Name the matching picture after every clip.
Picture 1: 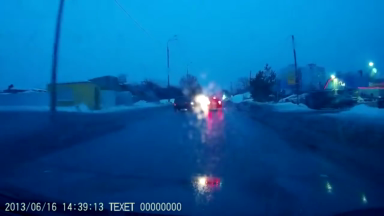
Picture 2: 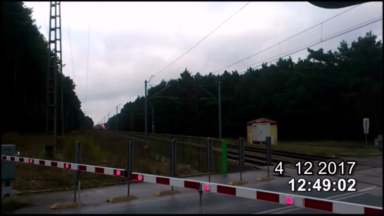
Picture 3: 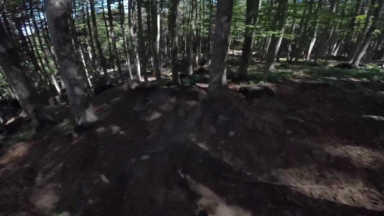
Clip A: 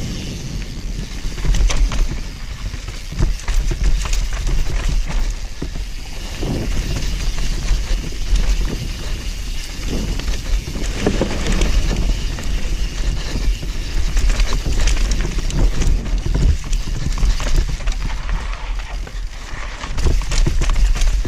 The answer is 3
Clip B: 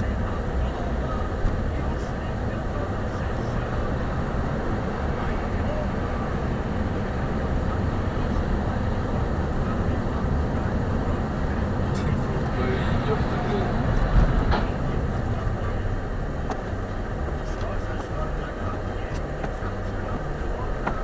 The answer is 1